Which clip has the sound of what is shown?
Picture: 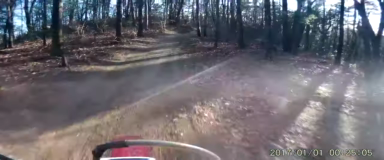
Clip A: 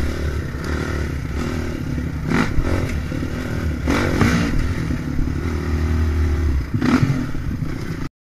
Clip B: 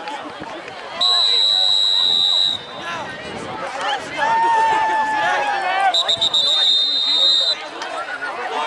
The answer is A